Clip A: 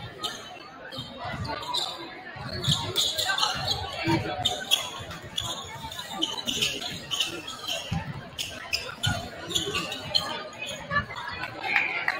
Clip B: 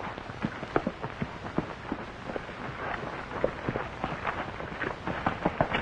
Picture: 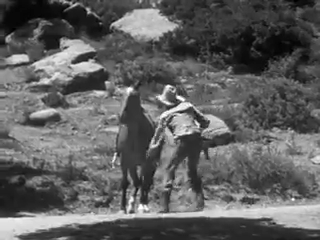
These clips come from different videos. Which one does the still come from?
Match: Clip B